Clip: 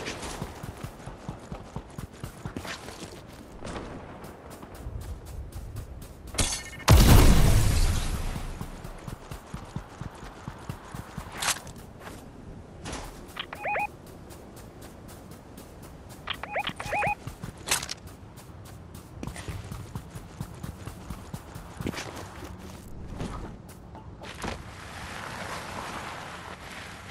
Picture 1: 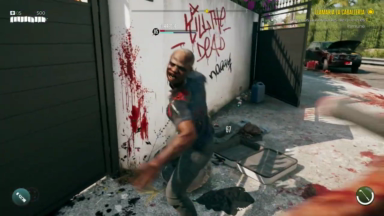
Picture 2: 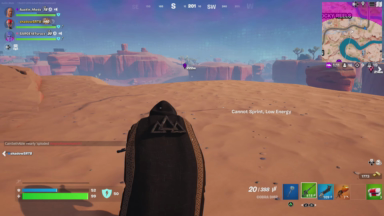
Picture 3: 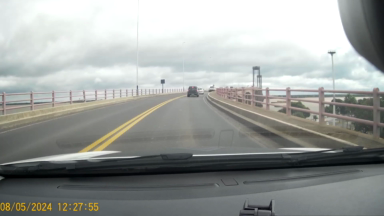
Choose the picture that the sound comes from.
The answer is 2